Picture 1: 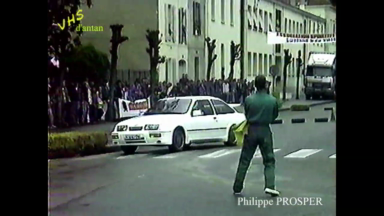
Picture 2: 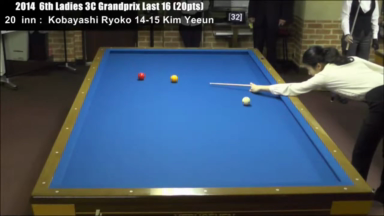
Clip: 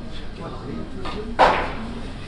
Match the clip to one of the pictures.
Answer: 2